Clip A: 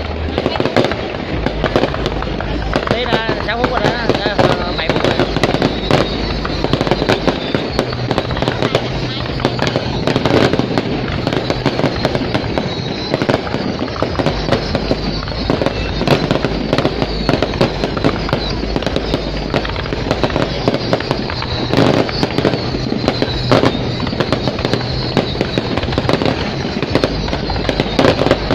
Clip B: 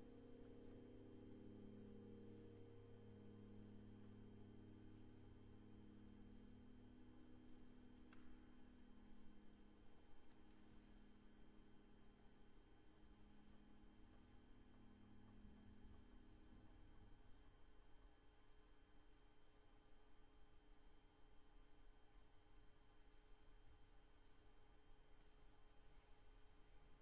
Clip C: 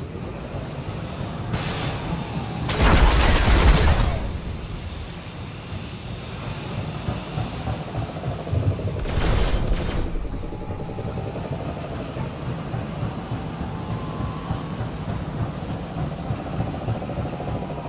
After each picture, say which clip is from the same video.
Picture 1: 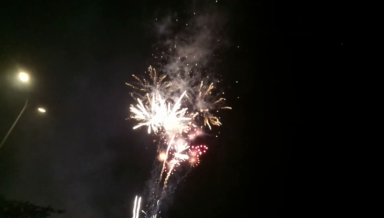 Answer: A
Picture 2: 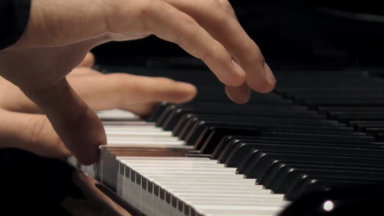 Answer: B